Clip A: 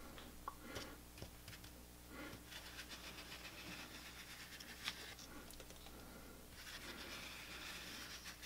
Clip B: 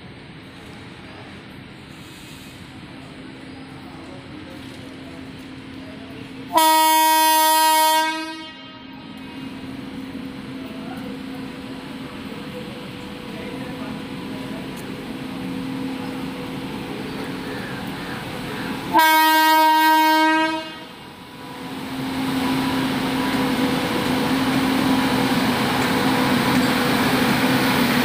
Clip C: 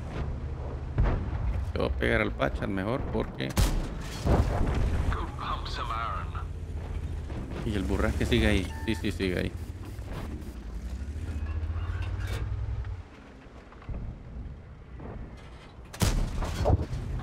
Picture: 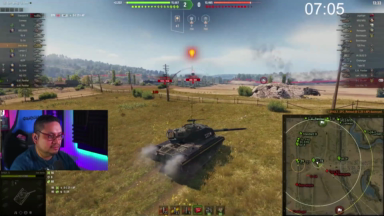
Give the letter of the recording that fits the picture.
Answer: C